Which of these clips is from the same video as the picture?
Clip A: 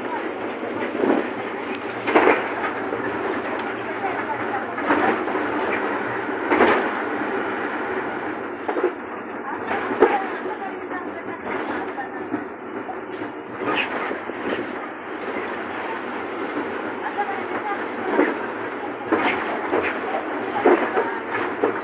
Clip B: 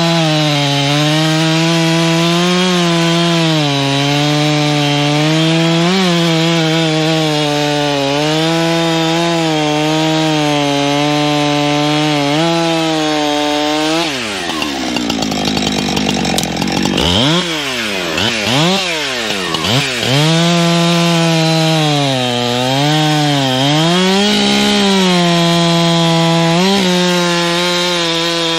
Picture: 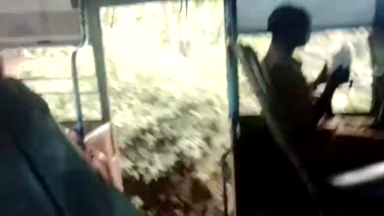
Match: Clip A